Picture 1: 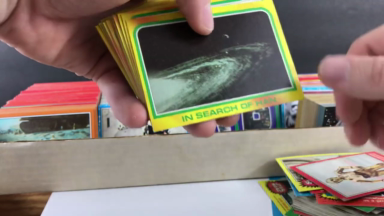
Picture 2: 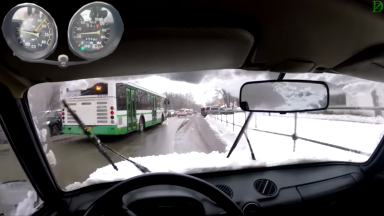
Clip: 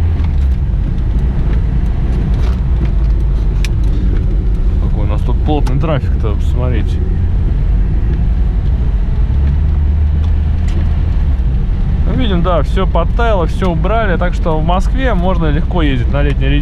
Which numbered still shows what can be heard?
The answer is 2